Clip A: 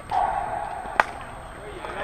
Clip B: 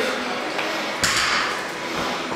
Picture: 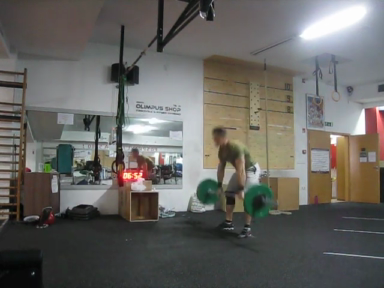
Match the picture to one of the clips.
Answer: B